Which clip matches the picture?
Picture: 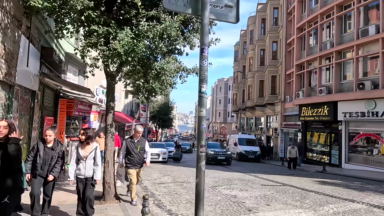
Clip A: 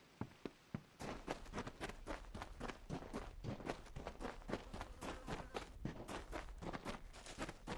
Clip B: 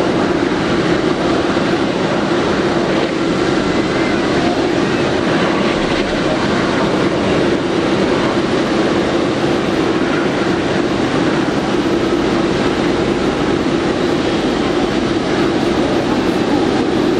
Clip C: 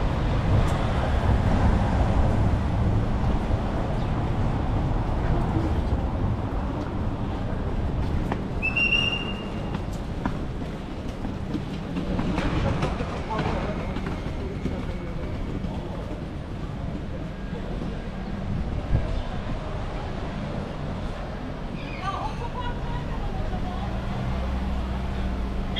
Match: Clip C